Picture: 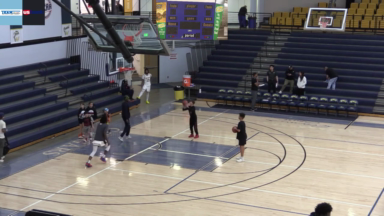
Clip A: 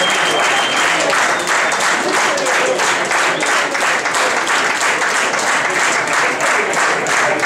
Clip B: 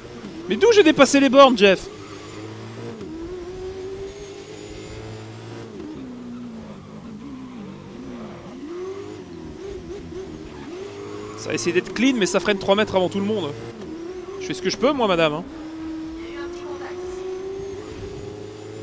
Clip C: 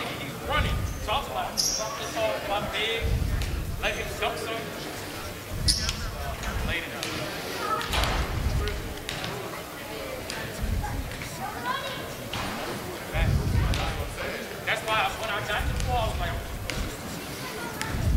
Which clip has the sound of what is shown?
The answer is C